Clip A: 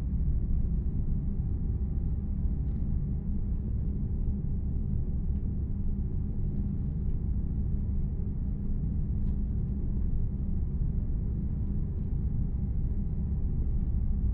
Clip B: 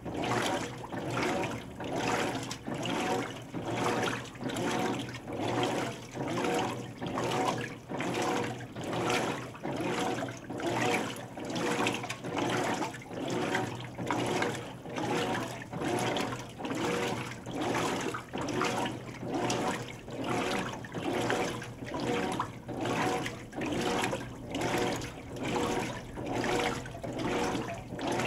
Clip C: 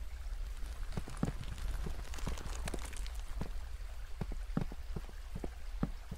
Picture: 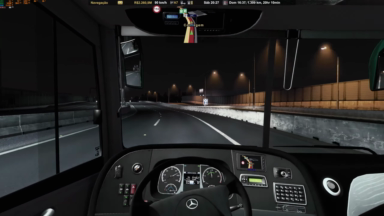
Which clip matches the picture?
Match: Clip A